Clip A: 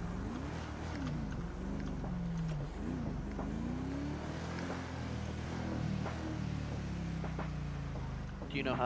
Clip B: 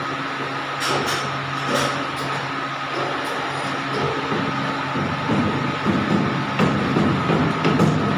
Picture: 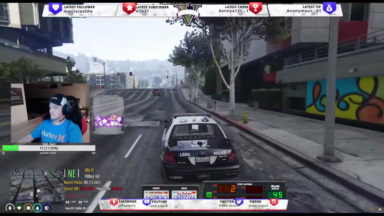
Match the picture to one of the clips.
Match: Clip A